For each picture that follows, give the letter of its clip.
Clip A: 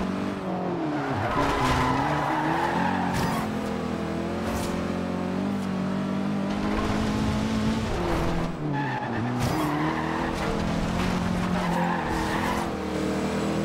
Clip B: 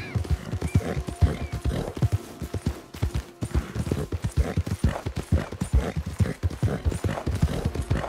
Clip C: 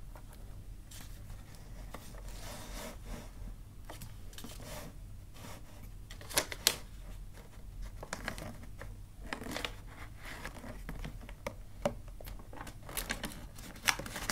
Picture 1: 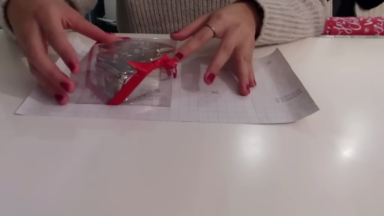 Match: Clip C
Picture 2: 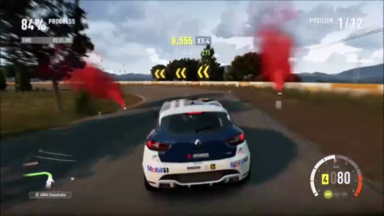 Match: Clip A